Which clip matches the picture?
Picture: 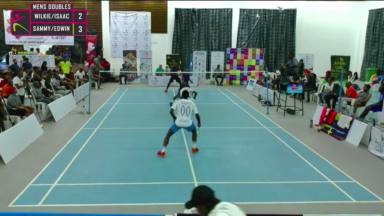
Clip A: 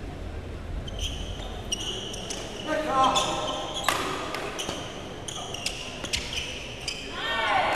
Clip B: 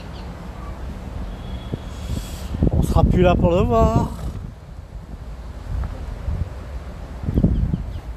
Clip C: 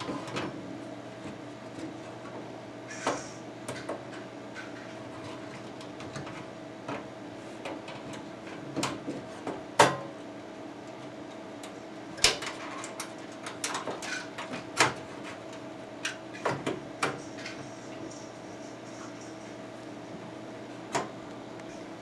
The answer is A